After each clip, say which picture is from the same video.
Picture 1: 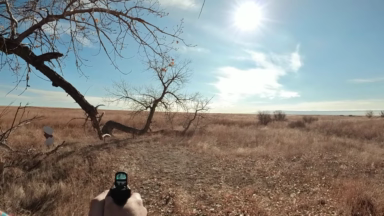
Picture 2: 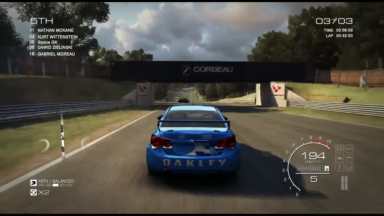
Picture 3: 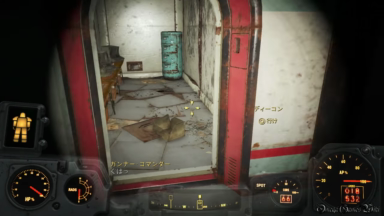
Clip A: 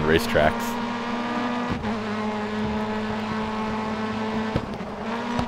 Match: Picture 2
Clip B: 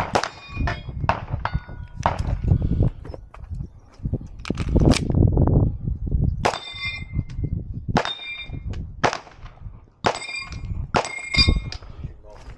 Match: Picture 1